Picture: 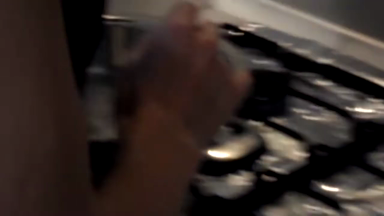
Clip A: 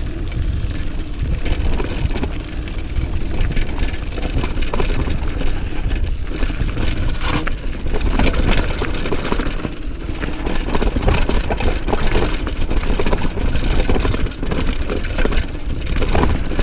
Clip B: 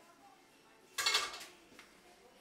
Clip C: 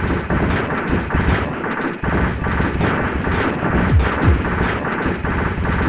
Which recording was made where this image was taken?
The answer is B